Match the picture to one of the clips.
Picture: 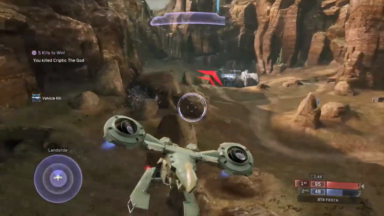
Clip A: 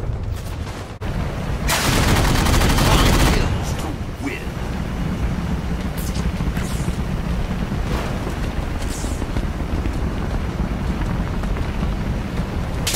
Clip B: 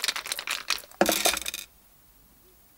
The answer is A